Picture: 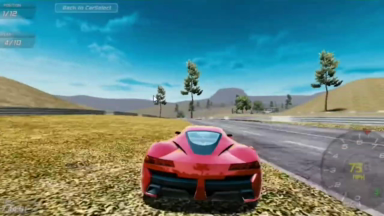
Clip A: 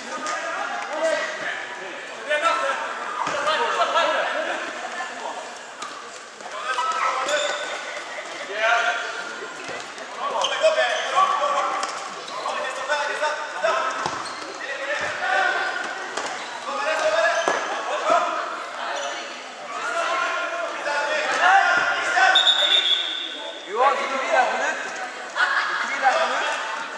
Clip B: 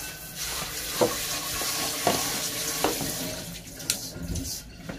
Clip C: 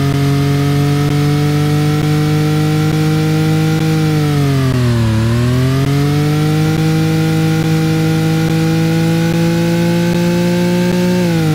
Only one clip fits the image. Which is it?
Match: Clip C